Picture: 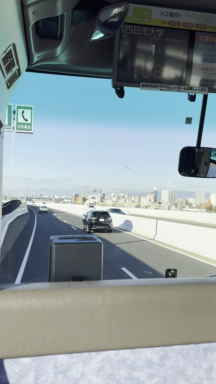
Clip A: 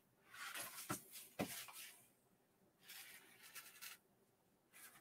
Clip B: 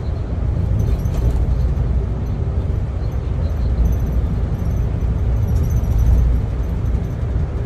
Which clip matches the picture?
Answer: B